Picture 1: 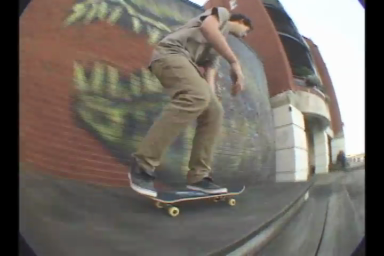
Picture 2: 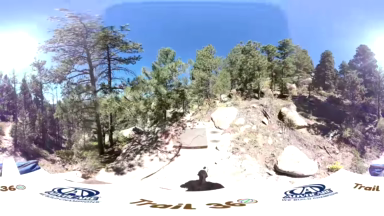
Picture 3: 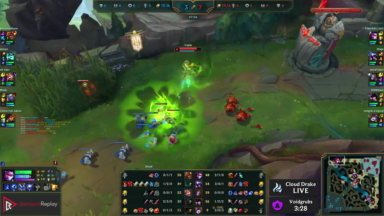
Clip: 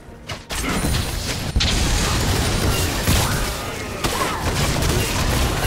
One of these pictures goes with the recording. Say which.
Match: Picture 3